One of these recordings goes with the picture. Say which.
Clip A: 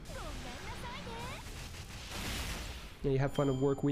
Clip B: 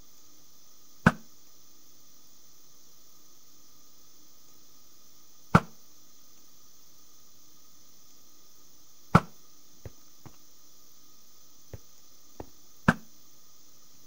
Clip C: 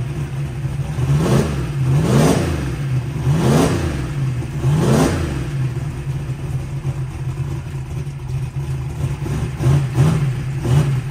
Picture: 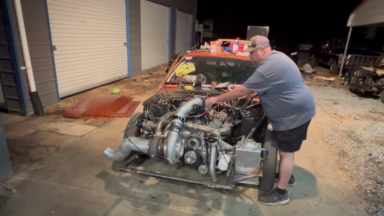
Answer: C